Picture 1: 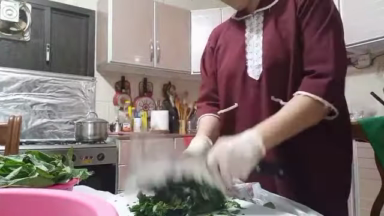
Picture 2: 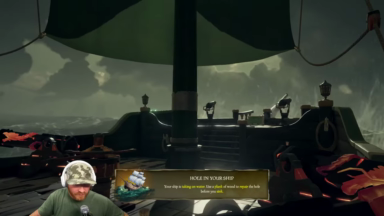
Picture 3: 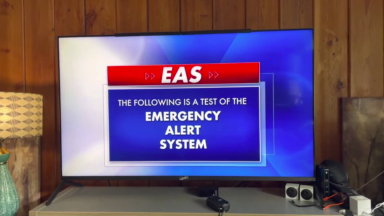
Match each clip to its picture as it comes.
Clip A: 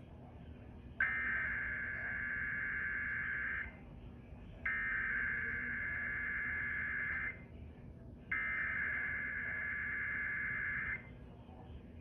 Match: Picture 3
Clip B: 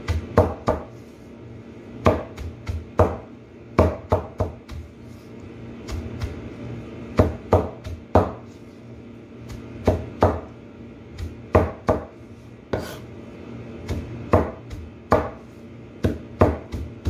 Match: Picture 1